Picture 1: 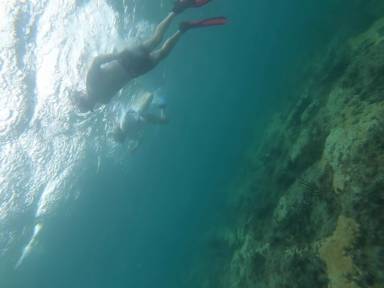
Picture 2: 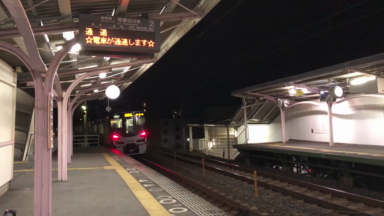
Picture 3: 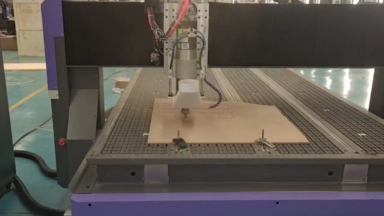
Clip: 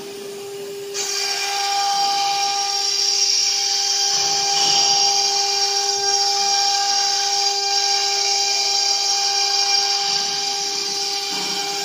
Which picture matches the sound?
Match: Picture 3